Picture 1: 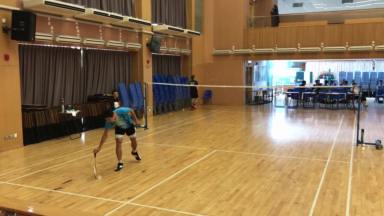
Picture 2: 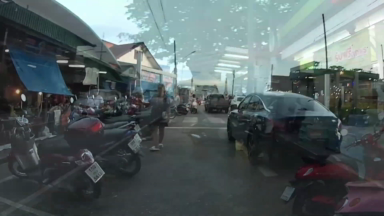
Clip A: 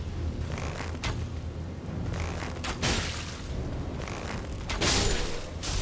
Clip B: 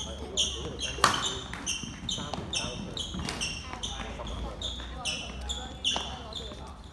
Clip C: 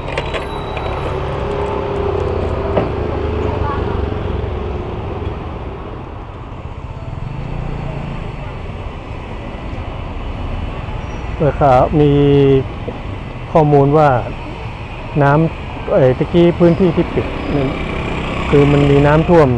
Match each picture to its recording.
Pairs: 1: B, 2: C